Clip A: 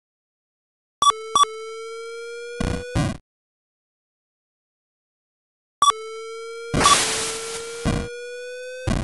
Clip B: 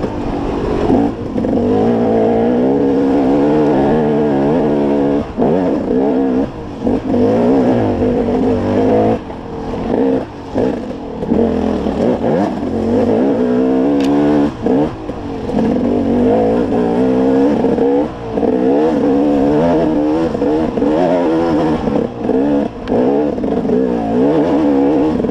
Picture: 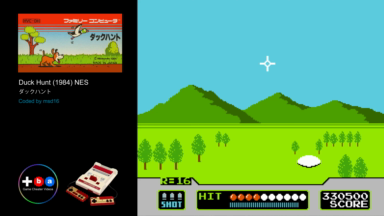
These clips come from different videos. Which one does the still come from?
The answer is A